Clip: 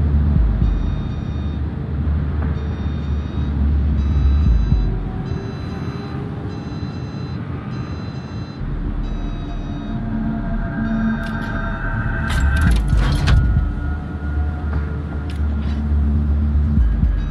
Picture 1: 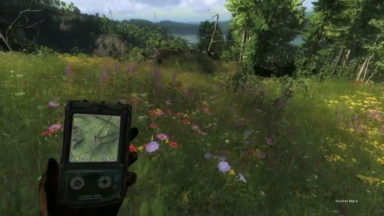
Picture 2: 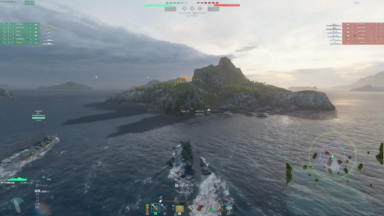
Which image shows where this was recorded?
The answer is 2